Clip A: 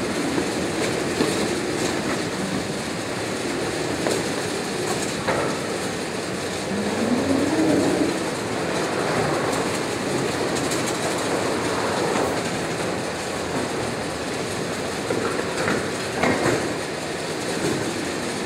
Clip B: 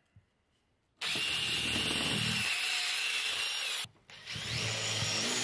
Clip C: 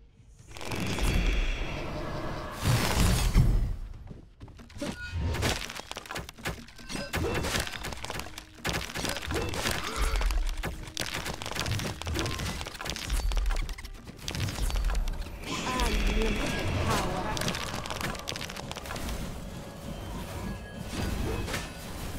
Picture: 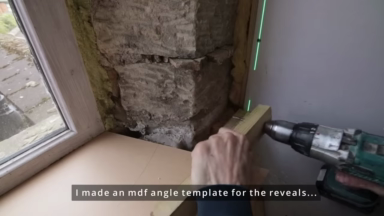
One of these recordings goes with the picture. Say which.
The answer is B